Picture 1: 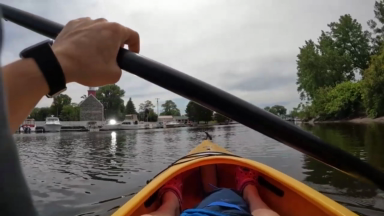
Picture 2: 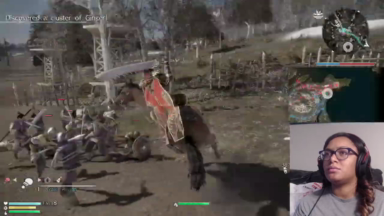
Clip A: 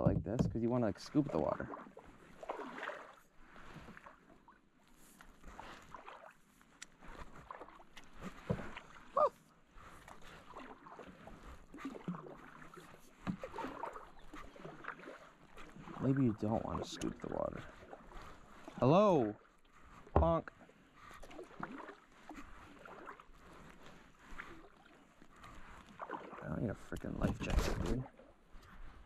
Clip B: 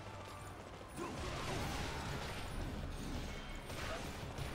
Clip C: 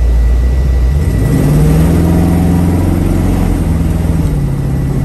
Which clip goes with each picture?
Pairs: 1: A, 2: B